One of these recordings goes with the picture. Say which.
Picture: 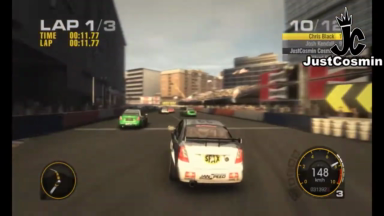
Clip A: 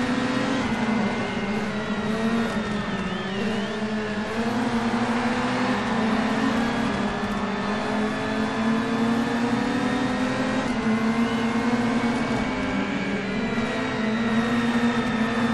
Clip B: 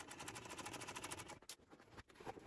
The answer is A